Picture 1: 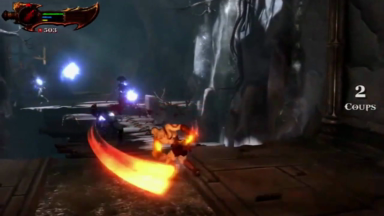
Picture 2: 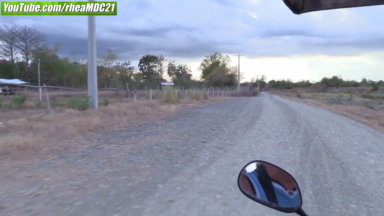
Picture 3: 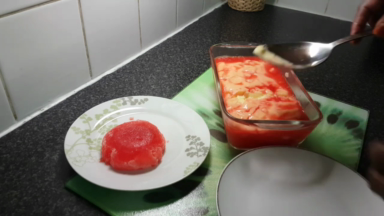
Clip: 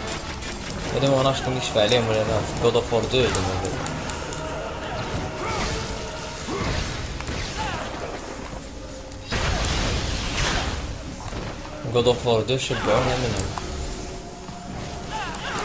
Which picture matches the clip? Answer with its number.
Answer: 1